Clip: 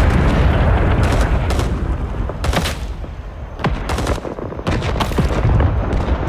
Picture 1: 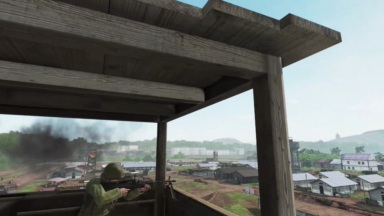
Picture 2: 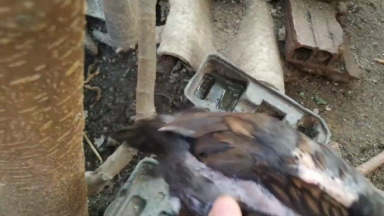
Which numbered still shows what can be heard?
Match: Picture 1